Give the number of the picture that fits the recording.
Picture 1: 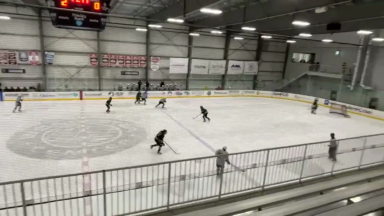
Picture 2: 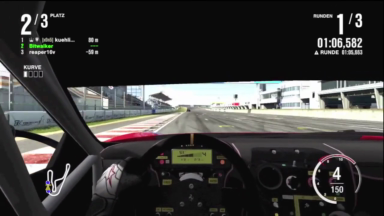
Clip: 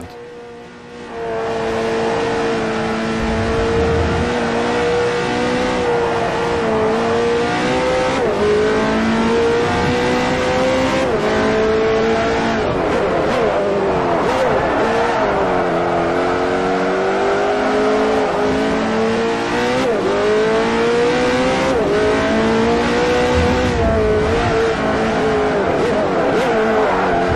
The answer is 2